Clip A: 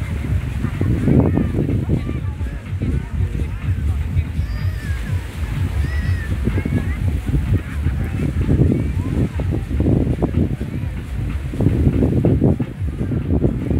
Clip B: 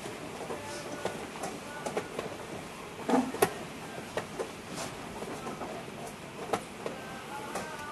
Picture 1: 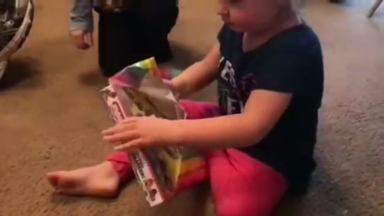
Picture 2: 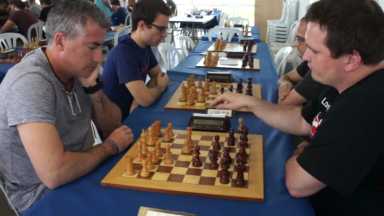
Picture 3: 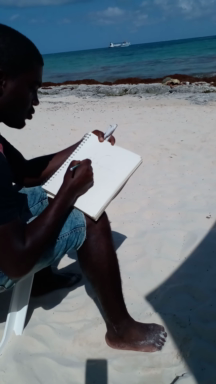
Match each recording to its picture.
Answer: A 3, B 2